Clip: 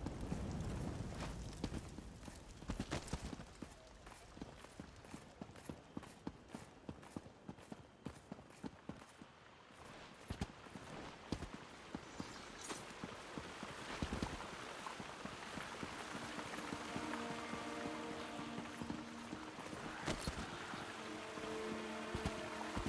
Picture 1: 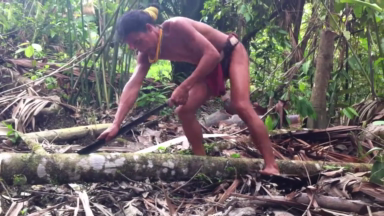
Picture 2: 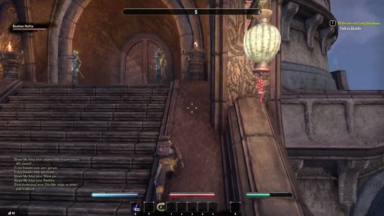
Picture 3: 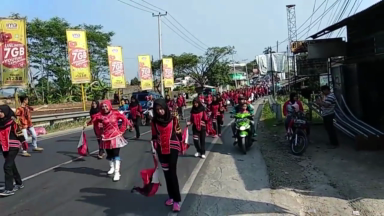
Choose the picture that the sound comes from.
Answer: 2